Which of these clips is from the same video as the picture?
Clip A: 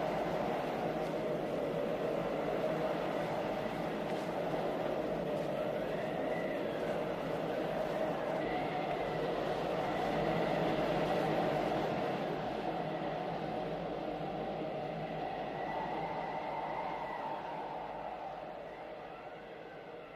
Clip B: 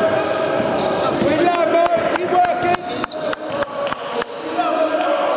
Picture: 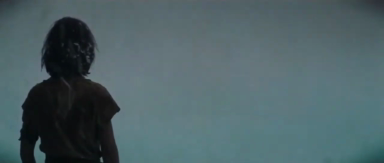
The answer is A